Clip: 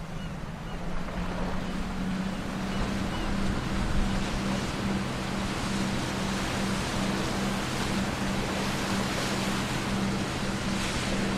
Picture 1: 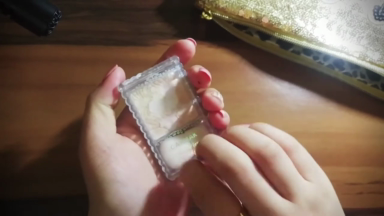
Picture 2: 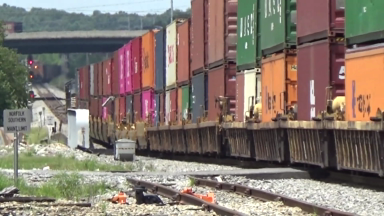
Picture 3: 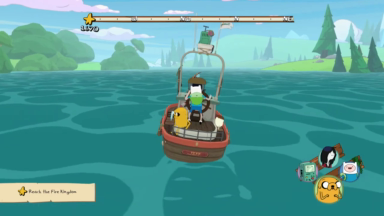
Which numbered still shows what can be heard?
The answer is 3